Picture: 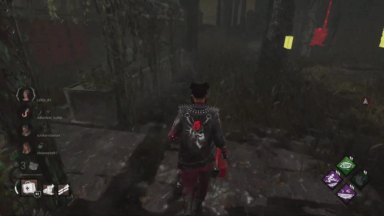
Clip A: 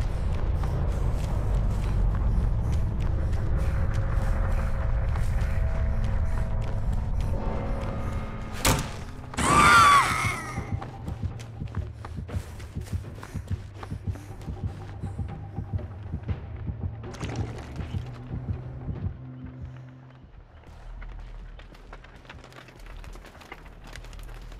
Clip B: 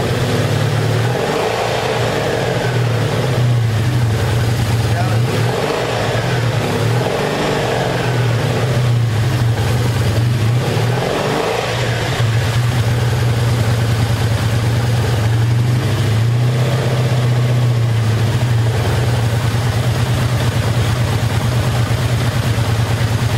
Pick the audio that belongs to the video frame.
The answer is A